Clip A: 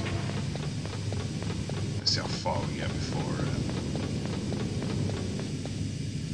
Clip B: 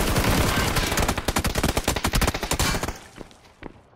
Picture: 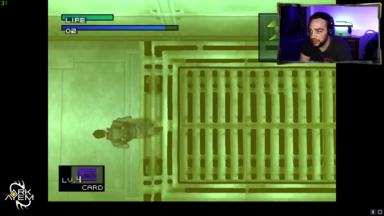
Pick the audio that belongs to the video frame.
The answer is A